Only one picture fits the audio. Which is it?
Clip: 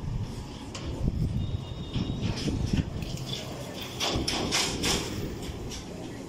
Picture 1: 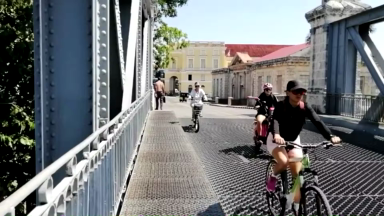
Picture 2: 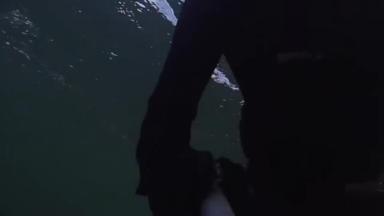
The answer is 1